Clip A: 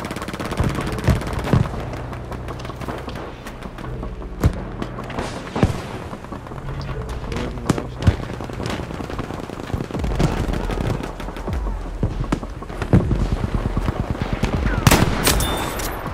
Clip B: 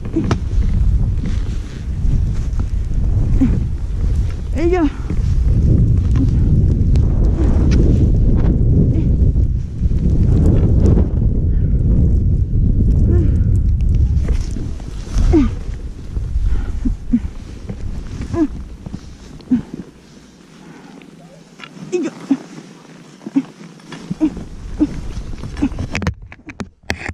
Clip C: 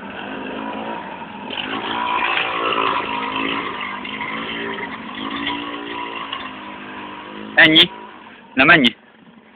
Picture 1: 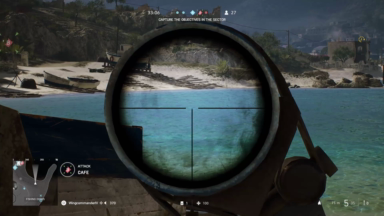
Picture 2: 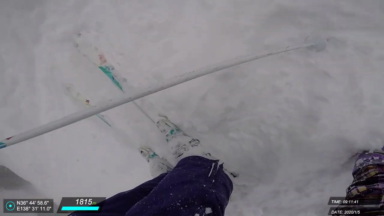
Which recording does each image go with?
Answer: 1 A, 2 B